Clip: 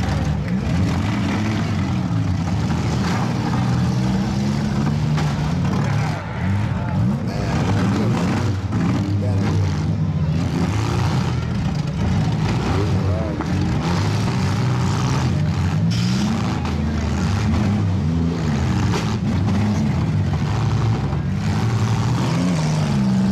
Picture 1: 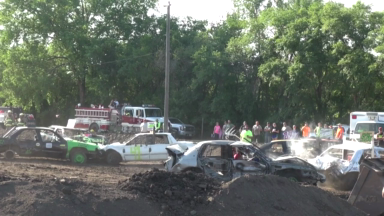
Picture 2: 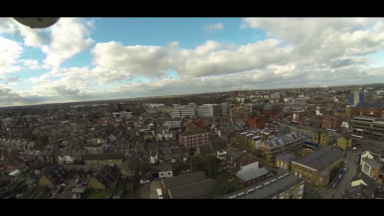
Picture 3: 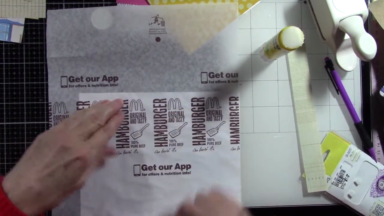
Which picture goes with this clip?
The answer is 1